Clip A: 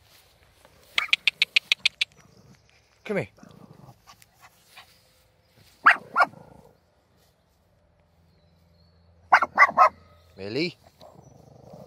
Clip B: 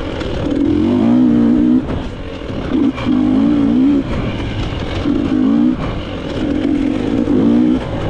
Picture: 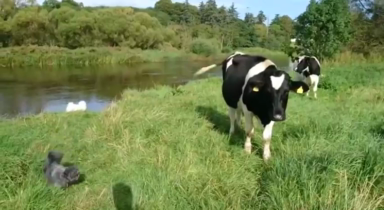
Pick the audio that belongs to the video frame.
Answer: A